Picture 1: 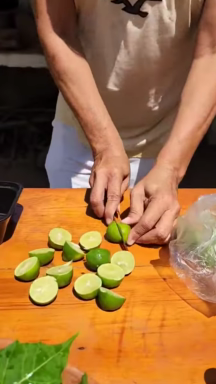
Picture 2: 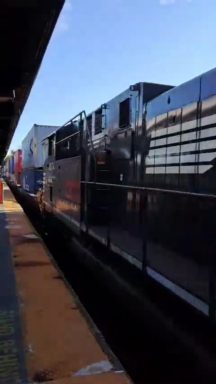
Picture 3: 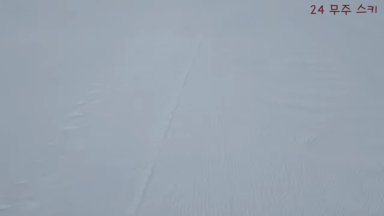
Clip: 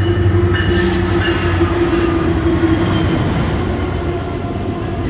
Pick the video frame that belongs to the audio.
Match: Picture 2